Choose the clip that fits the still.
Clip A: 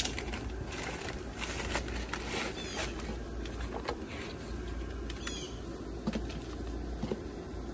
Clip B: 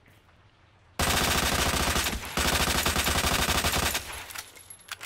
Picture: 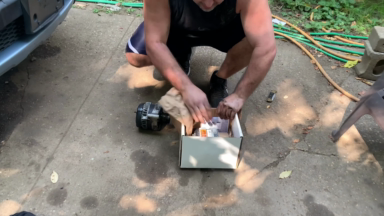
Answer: A